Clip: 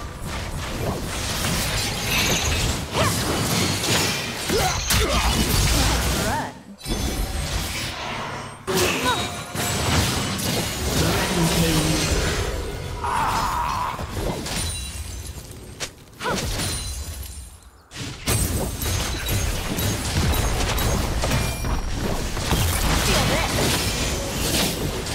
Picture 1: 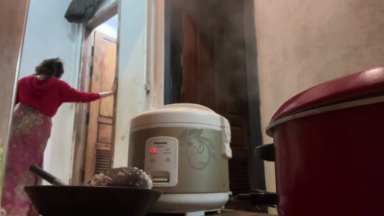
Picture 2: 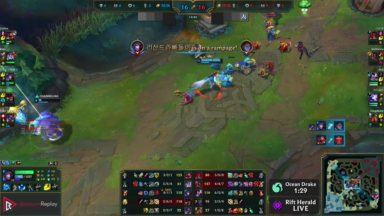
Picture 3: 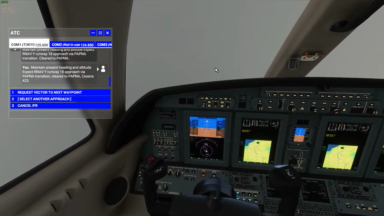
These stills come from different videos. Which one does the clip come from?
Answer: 2